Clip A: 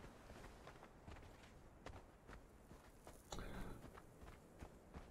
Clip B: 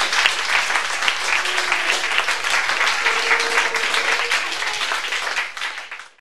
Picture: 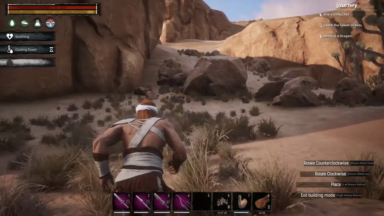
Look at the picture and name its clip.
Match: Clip A